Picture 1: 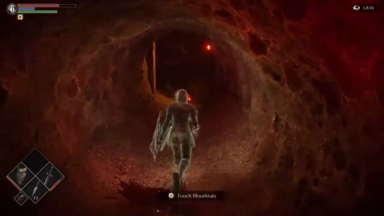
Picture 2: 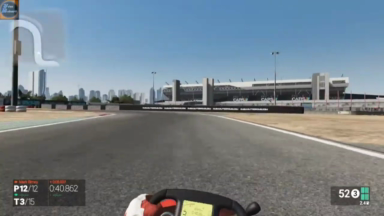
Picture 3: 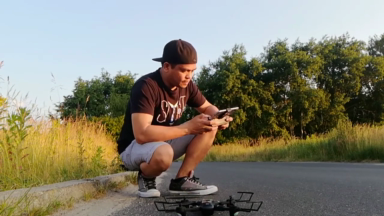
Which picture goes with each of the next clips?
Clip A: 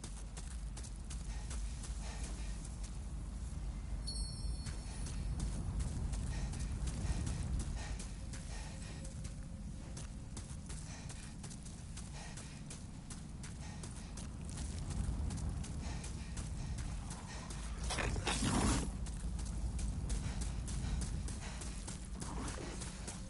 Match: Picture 1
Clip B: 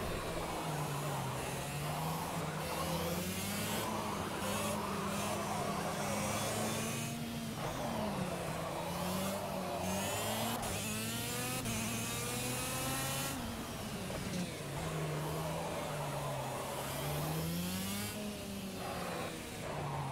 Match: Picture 2